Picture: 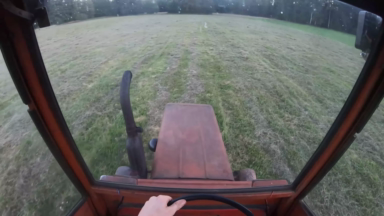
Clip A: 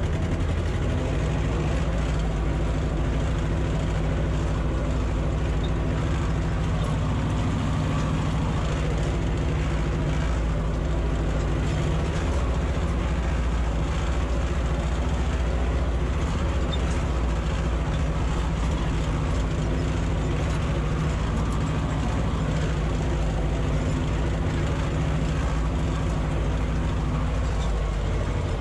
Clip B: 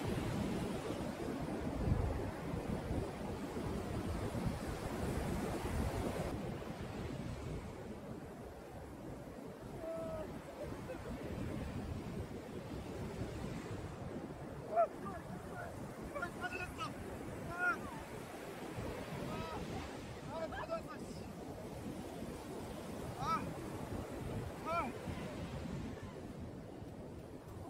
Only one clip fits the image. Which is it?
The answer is A